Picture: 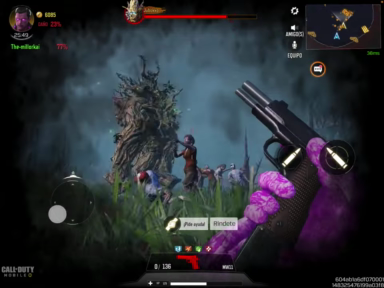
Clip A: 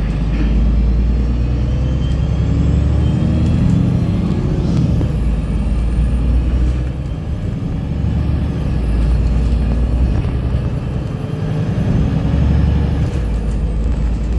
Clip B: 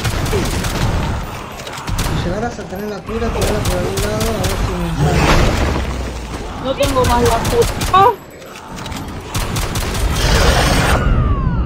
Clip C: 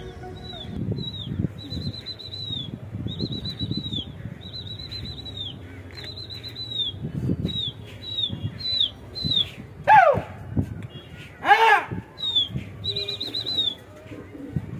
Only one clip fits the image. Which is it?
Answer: B